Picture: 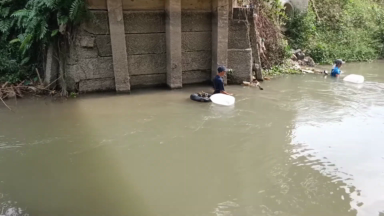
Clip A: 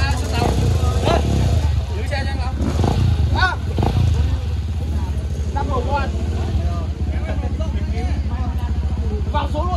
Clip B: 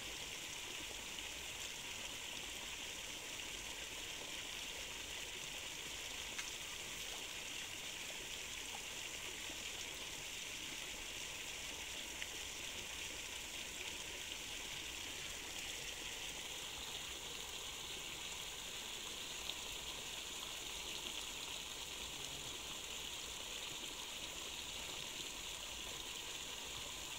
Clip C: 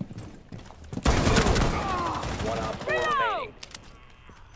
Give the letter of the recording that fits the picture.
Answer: B